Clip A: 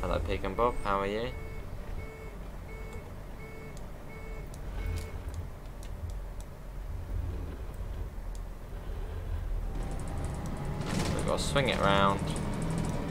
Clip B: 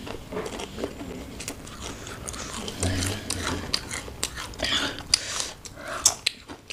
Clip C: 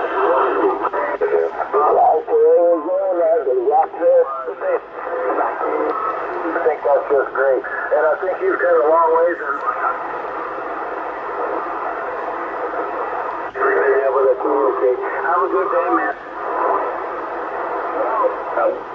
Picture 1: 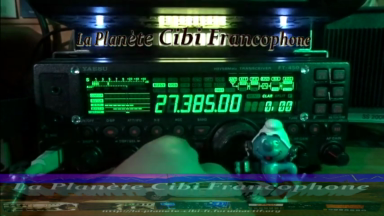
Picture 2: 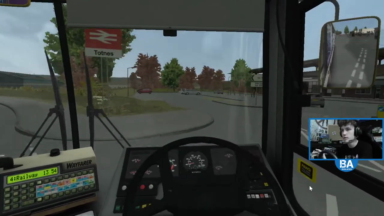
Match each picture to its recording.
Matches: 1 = C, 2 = A